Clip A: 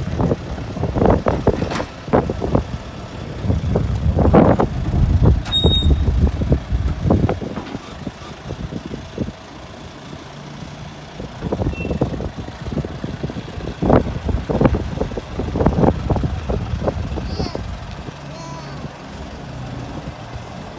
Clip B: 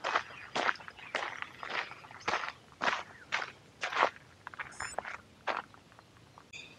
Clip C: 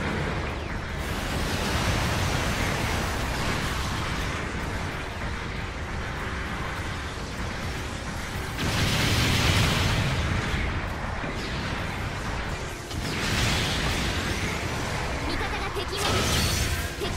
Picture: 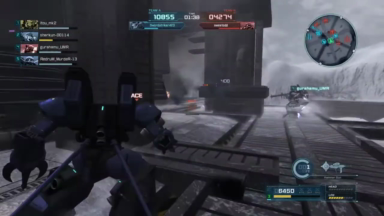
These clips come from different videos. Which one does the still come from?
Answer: C